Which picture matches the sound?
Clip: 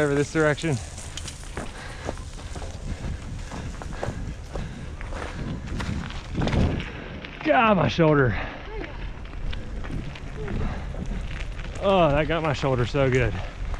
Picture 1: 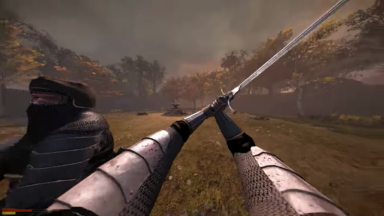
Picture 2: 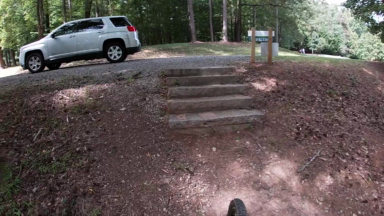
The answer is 2